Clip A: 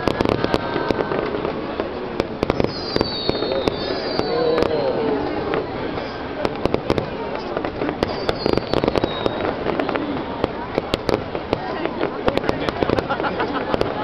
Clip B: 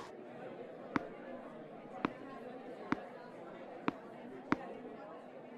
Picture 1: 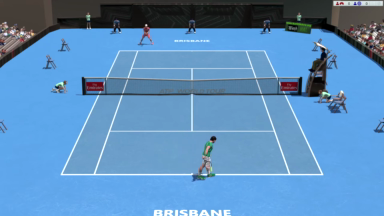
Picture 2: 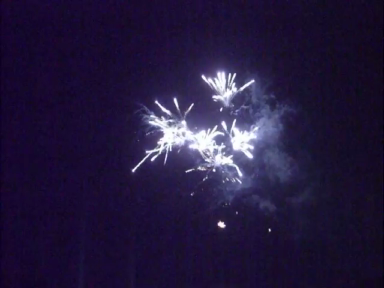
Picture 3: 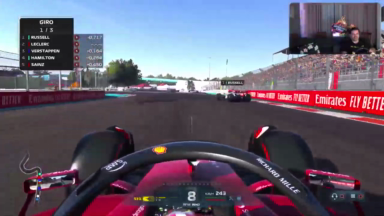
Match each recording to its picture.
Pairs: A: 2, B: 1